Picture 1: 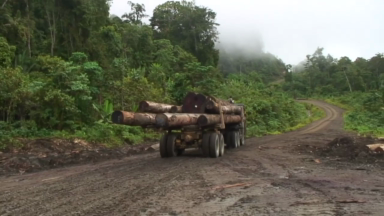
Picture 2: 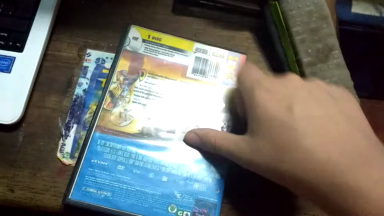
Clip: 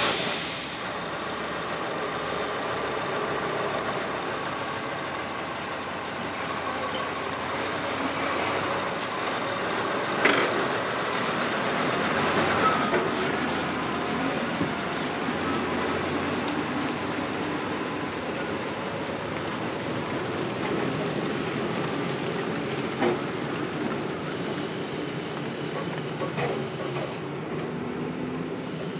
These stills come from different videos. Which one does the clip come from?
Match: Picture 1